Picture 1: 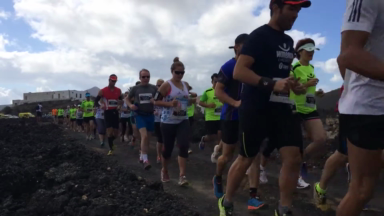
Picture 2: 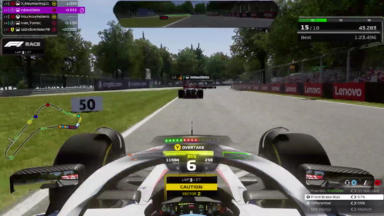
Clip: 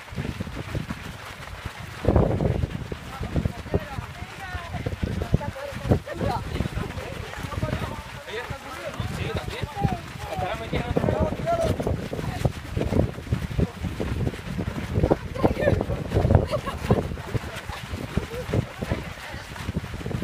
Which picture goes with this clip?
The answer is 1